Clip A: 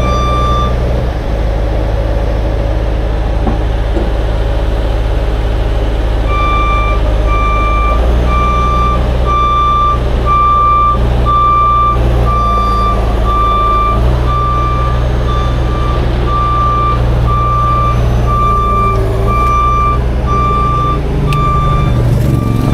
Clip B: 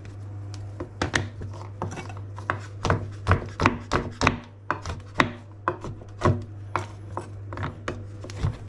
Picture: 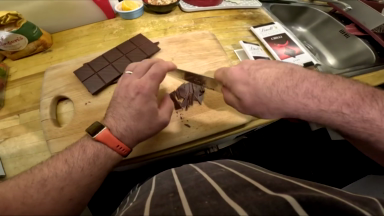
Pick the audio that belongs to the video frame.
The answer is B